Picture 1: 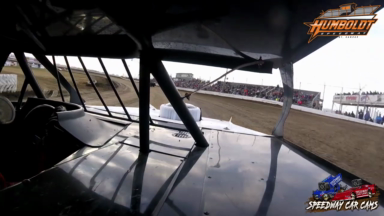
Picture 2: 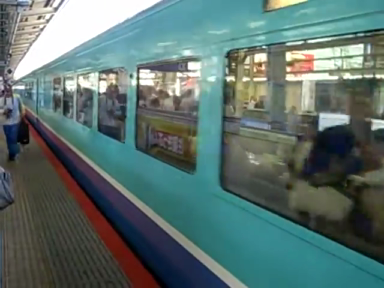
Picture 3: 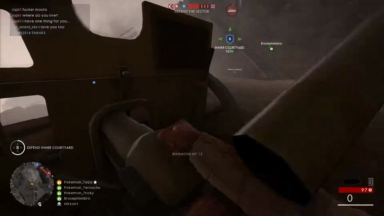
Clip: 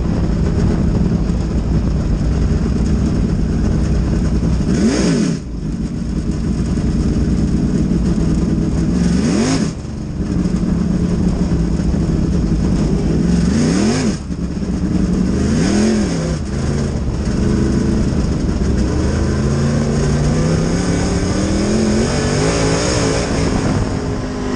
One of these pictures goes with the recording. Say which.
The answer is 1